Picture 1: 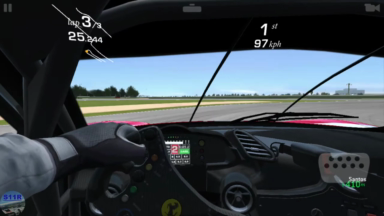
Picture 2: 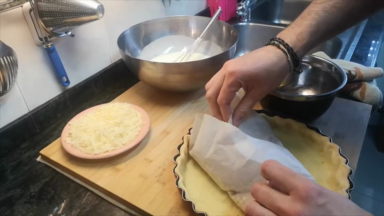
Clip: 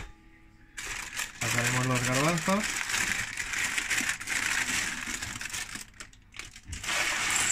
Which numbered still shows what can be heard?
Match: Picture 2